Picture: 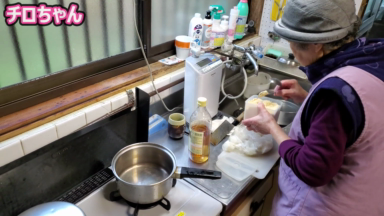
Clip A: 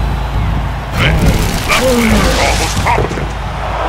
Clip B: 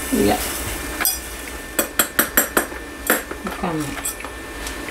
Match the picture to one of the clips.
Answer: B